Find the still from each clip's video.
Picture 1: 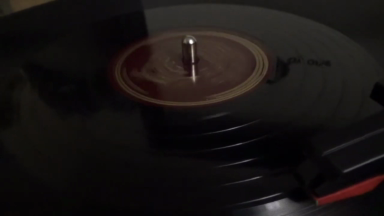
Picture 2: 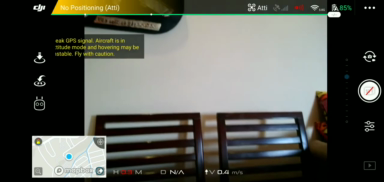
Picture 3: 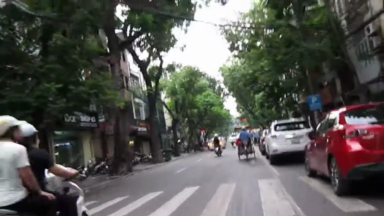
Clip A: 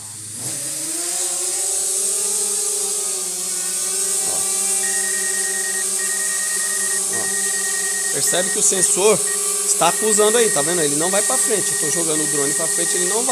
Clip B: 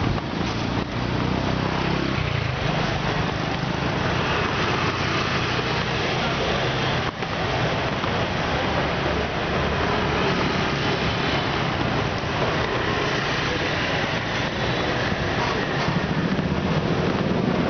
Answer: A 2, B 3